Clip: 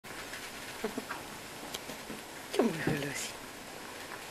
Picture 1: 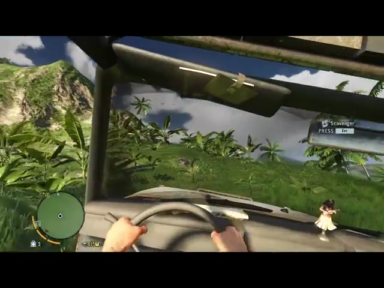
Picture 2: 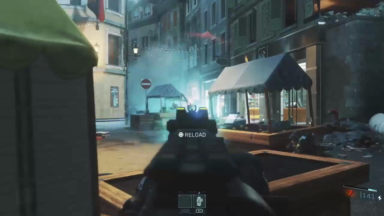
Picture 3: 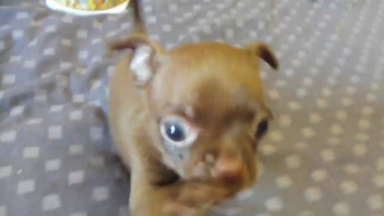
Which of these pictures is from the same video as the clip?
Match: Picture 3